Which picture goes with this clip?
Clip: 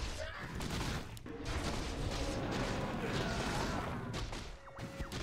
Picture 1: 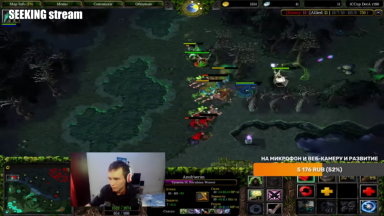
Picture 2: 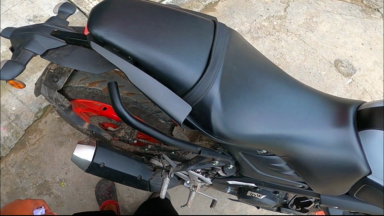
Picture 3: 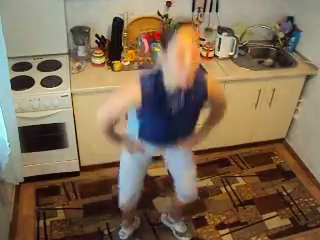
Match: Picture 1